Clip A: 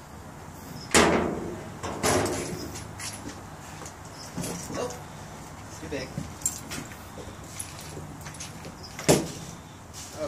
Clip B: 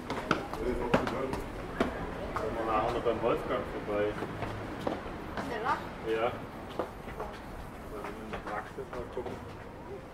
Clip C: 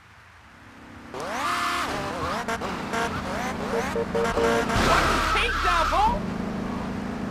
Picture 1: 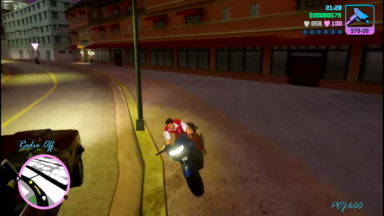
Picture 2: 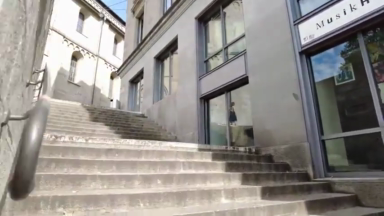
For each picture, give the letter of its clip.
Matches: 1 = C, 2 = B